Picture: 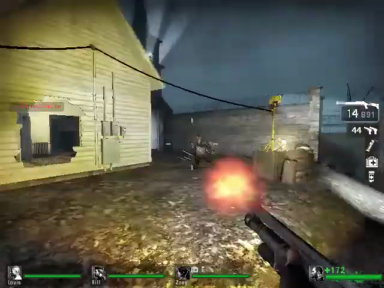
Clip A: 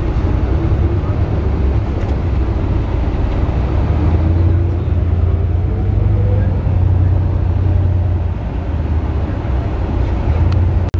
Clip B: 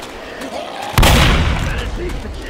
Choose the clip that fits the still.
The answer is B